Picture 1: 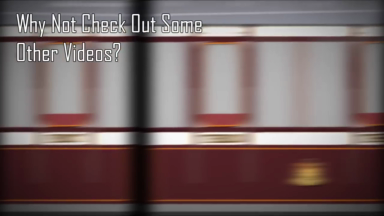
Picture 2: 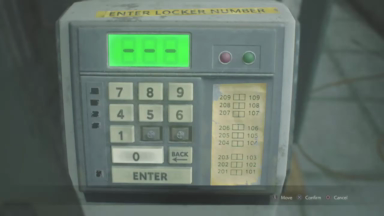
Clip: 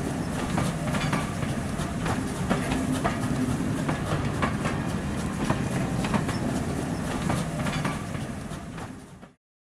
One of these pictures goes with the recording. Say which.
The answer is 1